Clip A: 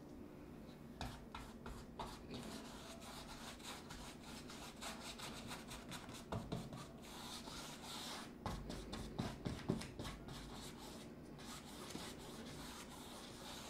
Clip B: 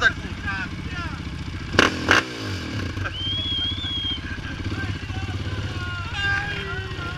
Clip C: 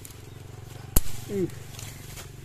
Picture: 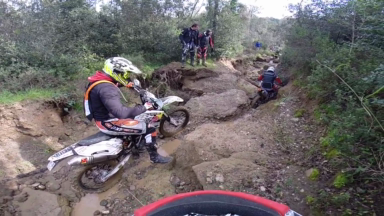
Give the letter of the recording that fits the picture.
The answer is B